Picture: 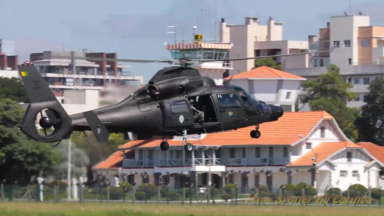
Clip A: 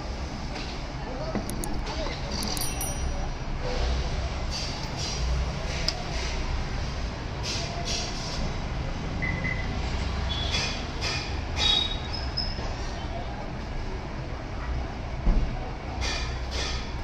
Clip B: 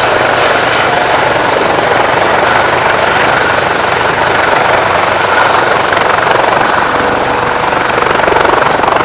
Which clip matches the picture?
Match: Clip B